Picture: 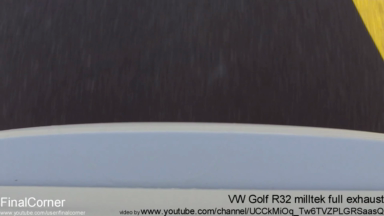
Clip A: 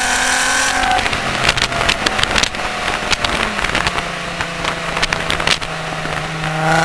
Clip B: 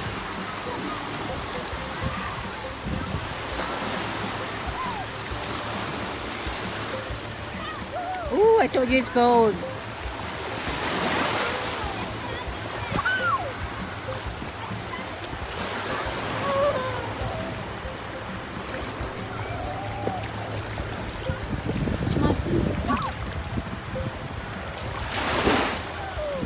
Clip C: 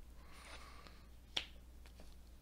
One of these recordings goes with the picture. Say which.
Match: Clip A